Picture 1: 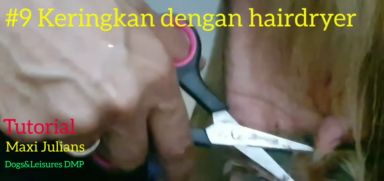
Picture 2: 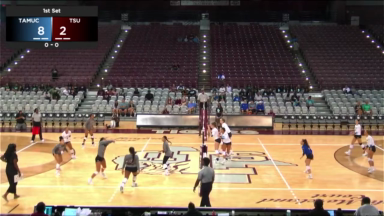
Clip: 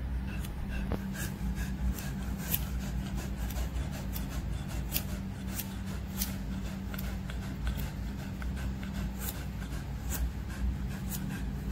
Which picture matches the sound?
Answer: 1